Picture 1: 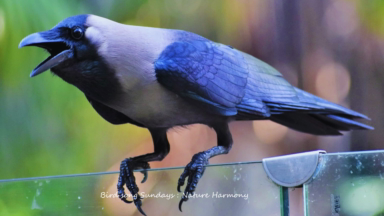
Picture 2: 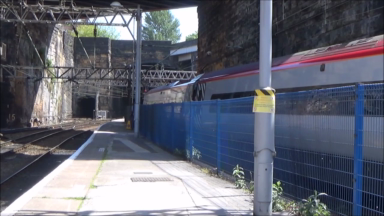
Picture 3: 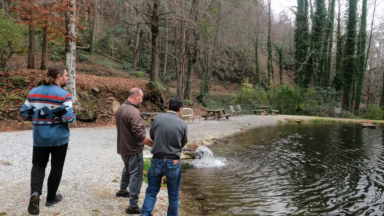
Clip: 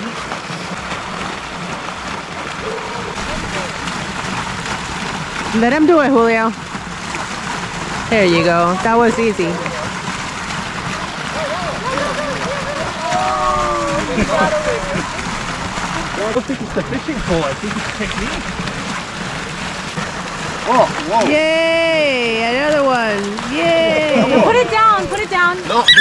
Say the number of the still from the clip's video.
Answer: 3